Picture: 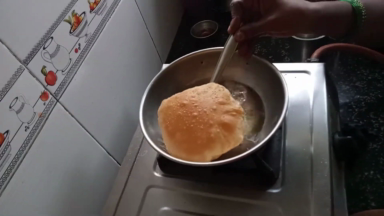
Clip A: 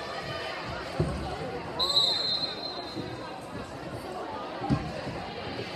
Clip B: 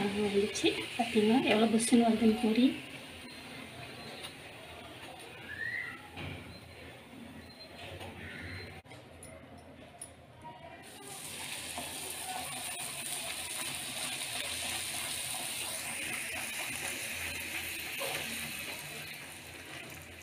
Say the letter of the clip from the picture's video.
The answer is B